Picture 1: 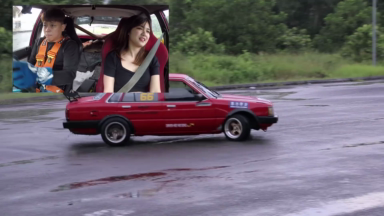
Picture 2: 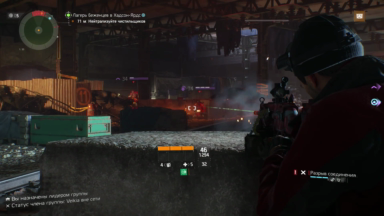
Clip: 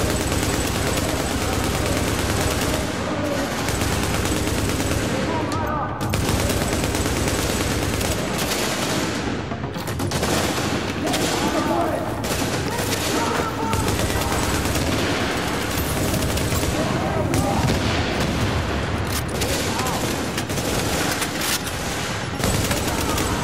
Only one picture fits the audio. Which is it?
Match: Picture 2